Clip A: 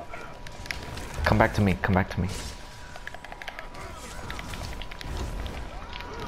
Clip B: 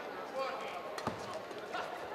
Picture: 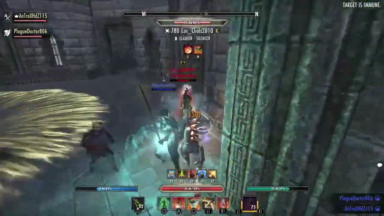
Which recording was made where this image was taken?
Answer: A